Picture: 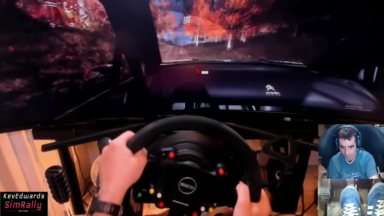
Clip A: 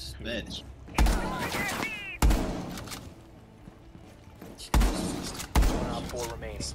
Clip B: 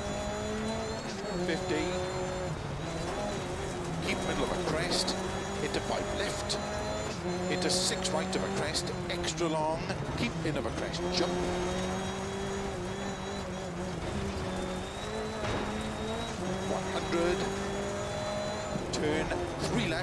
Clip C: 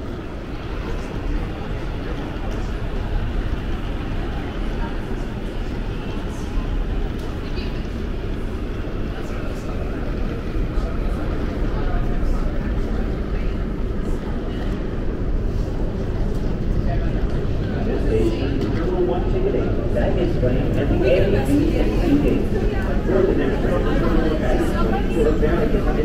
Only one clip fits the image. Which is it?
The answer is B